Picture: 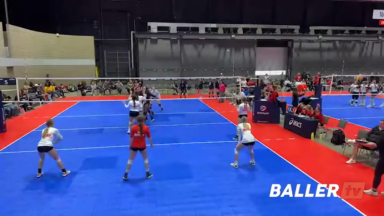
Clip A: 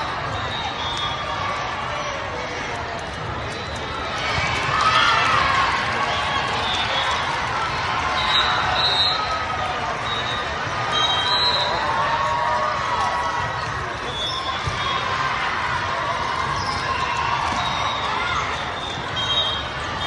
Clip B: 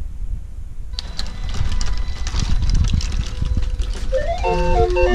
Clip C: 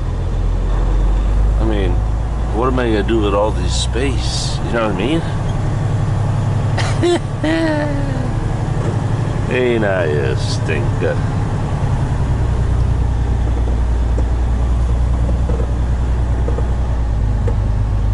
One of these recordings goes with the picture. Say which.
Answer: A